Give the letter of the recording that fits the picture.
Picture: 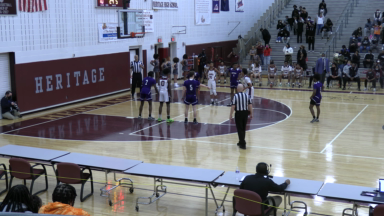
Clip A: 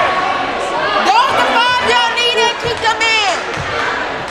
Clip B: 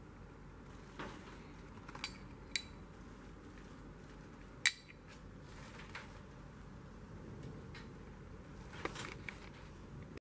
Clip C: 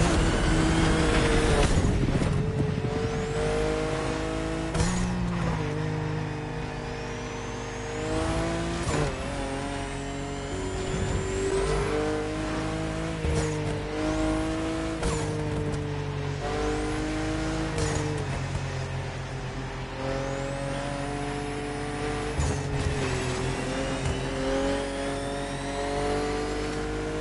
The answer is A